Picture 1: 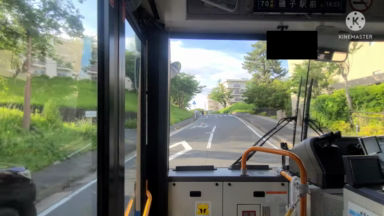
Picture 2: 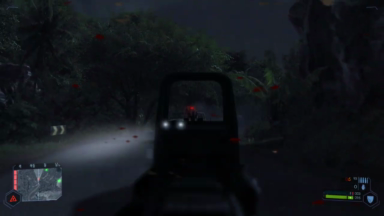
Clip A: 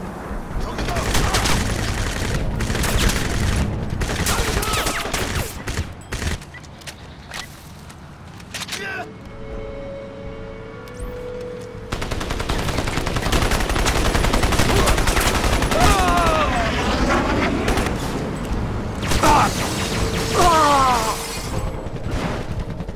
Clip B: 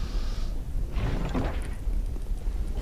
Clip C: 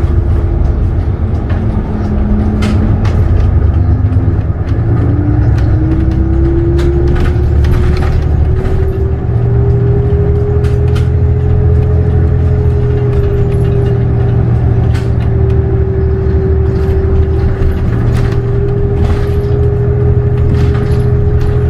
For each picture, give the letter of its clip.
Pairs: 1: C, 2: A